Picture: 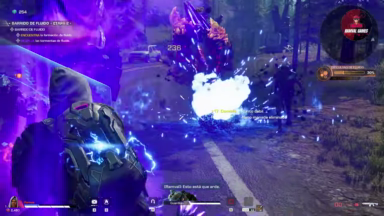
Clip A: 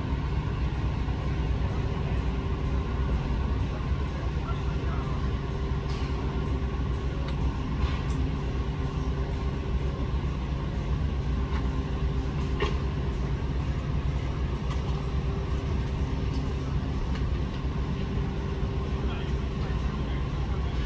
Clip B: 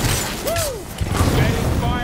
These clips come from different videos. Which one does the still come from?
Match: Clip B